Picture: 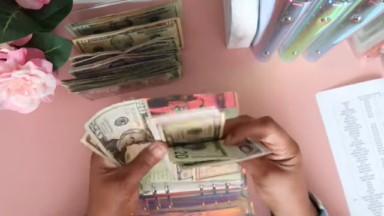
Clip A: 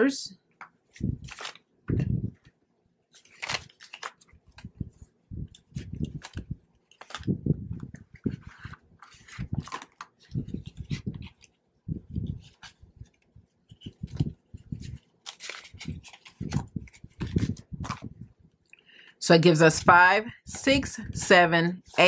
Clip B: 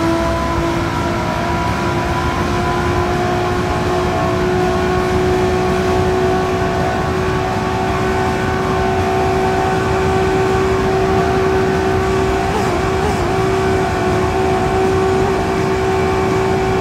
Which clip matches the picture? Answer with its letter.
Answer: A